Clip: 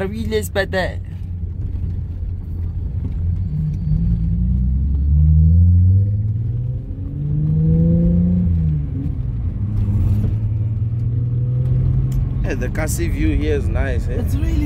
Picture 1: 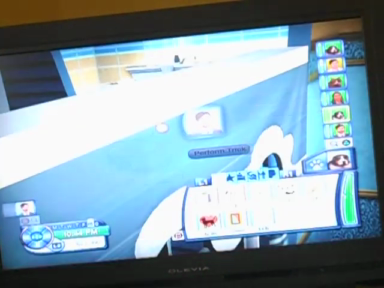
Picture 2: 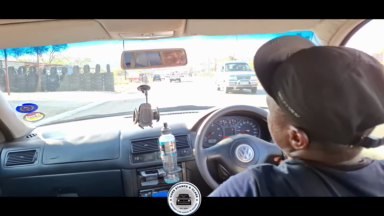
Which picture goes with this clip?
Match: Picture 2